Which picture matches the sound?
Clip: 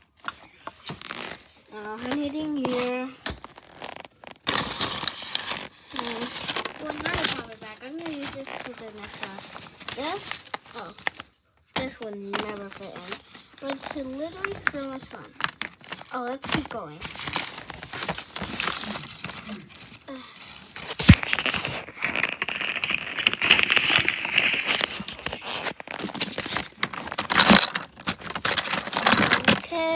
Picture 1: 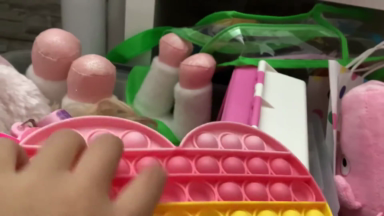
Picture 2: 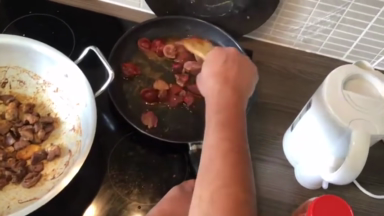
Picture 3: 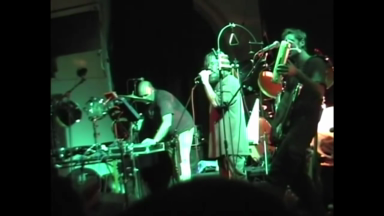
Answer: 1